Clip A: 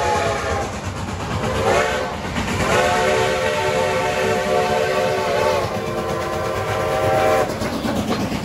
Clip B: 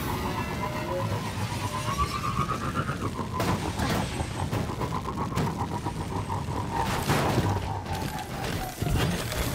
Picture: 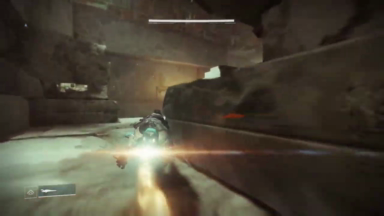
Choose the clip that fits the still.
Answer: B